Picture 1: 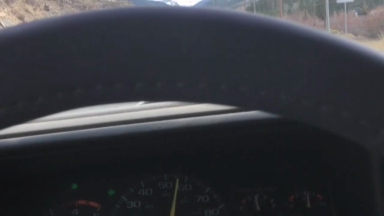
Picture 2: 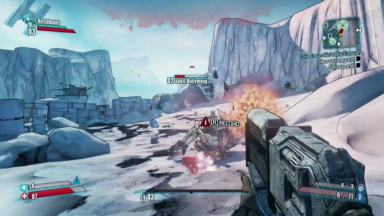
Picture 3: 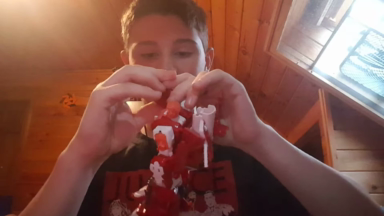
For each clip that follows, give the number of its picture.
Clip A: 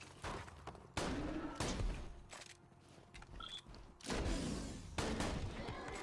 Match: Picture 2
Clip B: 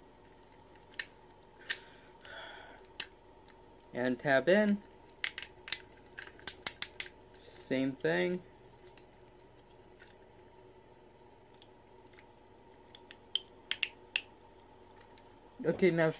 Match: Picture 3